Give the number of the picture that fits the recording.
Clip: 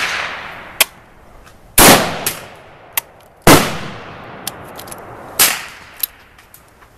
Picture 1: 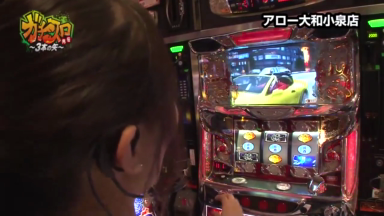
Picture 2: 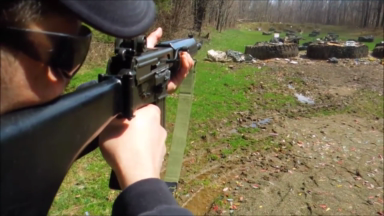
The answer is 2